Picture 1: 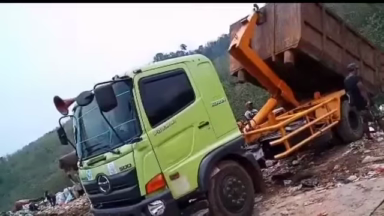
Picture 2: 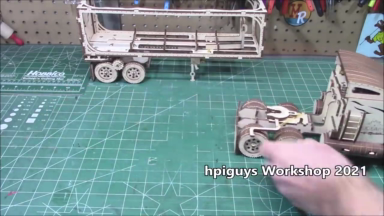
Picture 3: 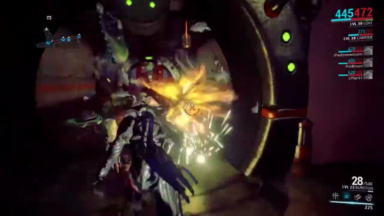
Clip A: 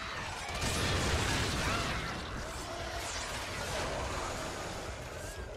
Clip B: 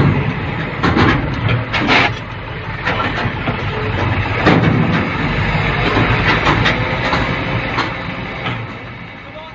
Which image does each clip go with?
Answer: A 3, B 1